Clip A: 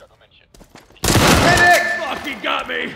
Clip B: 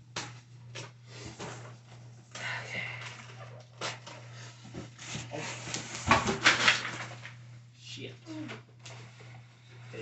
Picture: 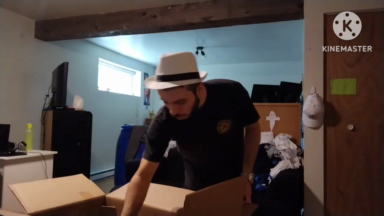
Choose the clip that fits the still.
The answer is B